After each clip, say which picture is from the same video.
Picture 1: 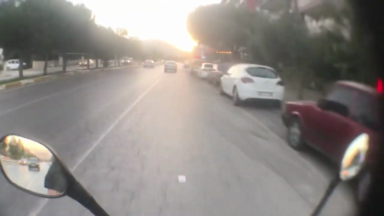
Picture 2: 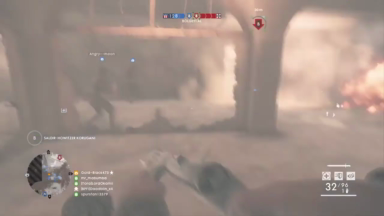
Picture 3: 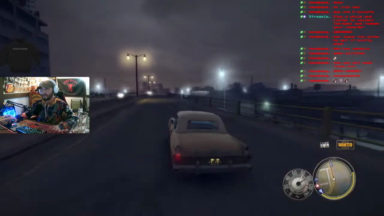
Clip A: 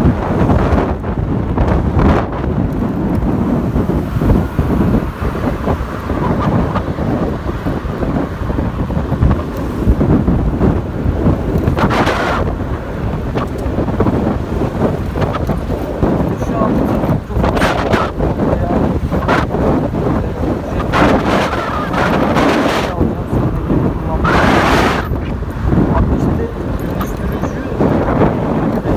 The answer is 1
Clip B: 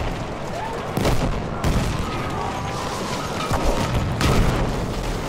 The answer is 2